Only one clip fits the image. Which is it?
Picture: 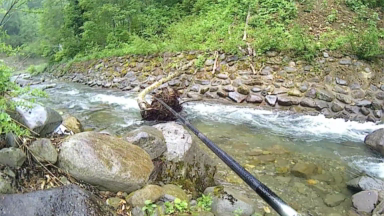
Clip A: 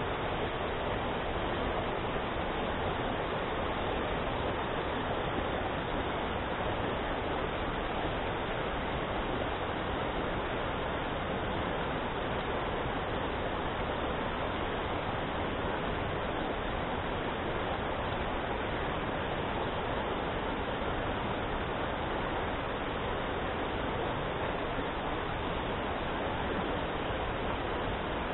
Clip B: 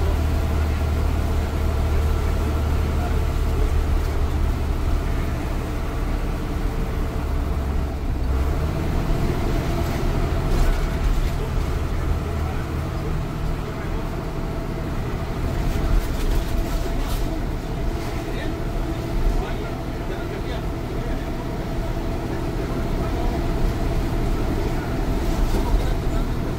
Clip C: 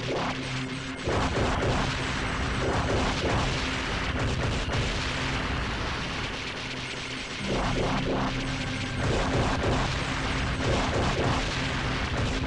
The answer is A